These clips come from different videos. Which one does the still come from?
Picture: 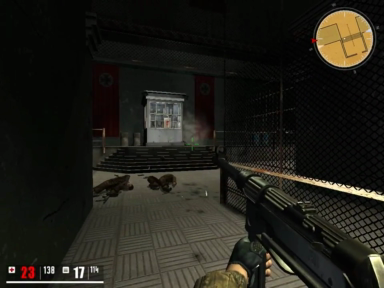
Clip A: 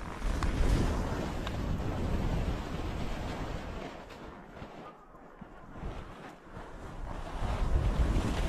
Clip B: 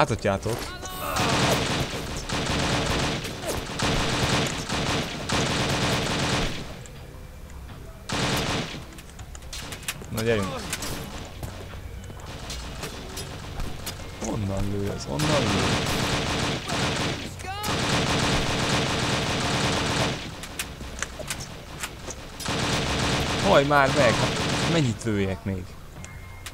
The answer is B